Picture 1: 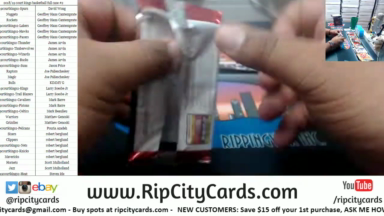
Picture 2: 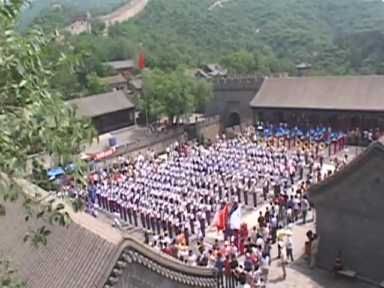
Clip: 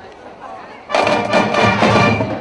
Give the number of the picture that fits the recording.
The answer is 2